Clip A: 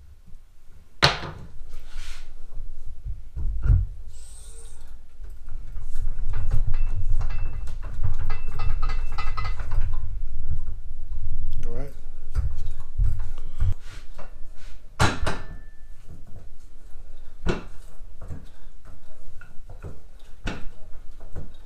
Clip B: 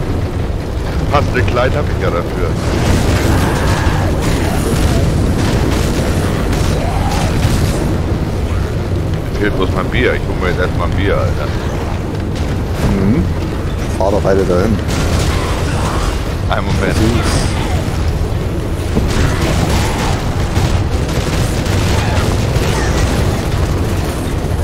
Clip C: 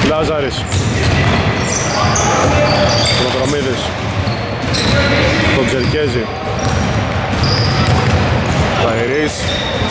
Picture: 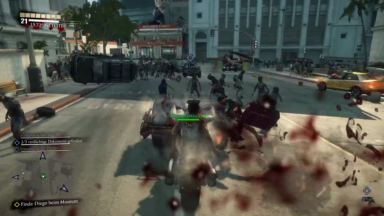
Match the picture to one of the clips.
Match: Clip B